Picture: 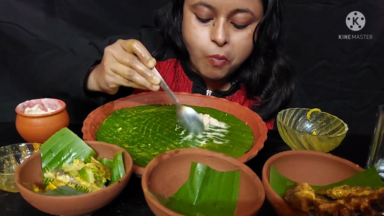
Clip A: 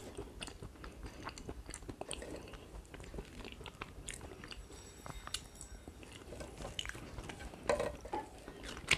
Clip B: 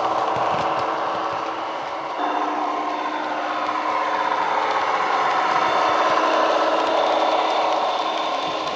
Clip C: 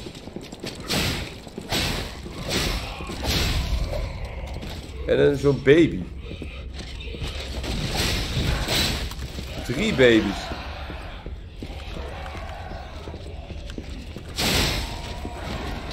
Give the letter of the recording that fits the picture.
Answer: A